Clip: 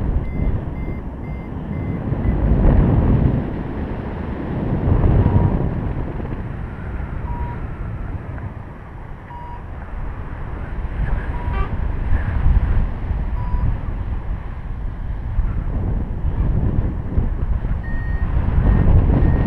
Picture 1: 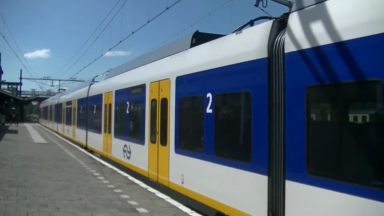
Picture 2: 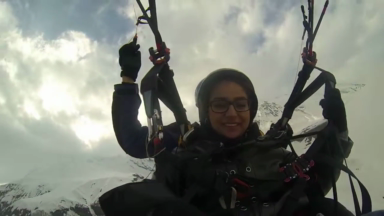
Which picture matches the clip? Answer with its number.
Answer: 2